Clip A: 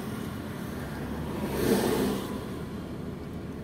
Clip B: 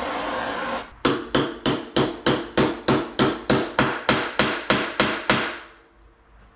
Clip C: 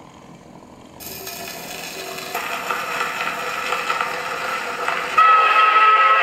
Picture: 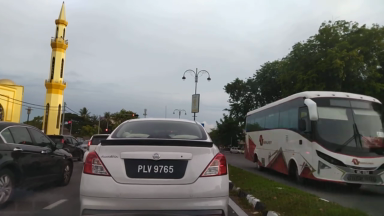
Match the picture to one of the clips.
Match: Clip A